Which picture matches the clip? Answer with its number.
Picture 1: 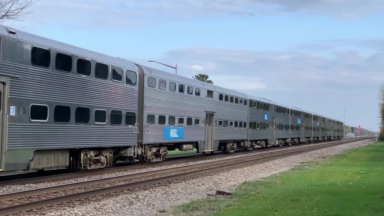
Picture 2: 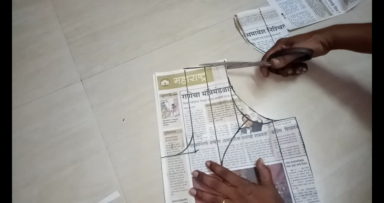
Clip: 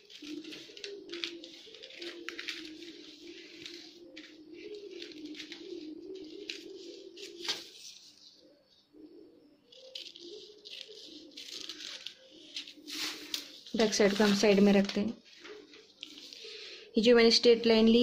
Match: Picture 2